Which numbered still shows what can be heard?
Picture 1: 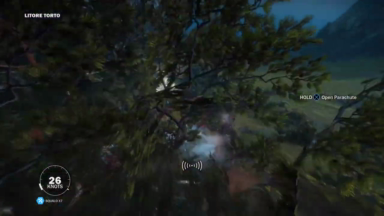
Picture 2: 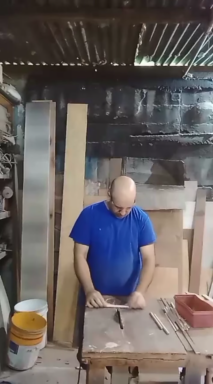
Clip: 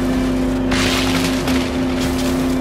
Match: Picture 1